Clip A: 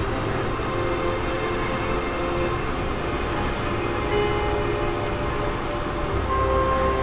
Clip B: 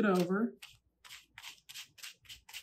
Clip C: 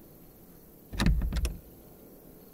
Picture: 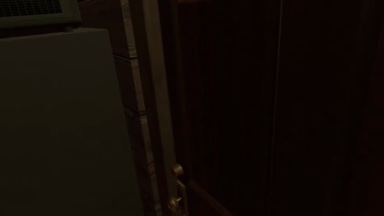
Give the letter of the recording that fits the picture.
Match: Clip C